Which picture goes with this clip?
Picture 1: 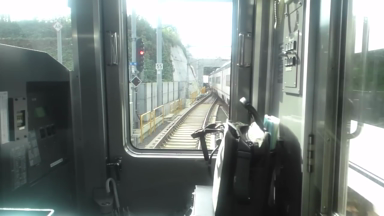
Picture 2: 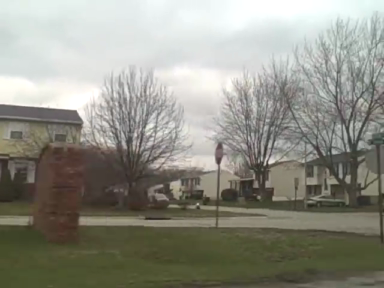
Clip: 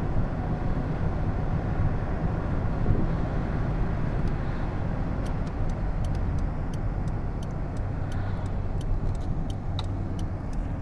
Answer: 2